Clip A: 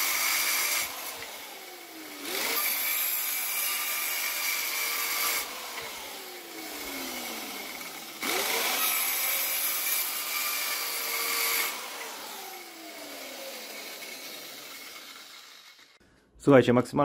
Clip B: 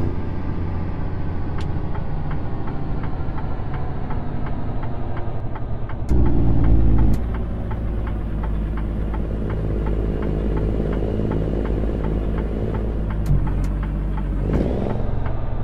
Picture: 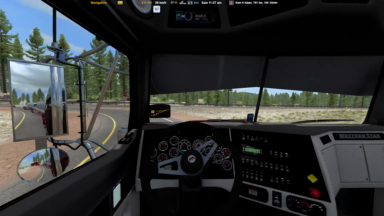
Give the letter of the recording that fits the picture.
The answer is B